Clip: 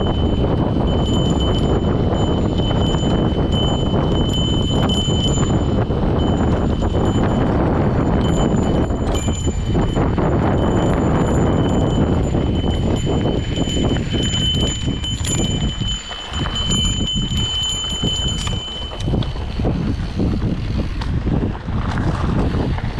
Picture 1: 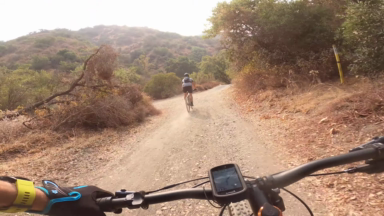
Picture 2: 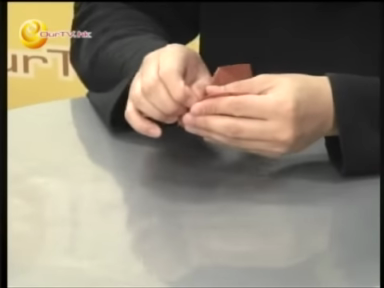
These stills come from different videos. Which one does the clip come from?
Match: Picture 1